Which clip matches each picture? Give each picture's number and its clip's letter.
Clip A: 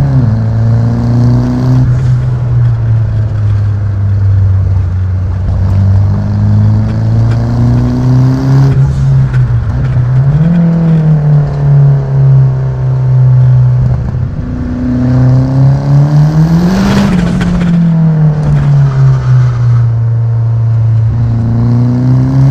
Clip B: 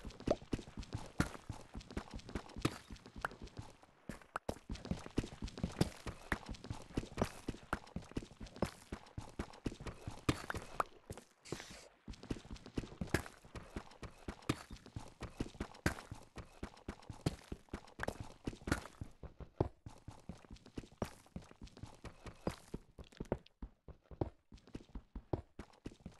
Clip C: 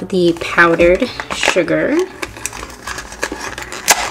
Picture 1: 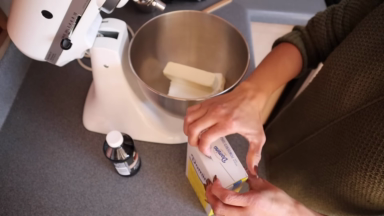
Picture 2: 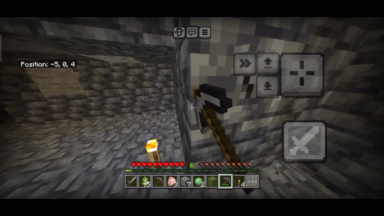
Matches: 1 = C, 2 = B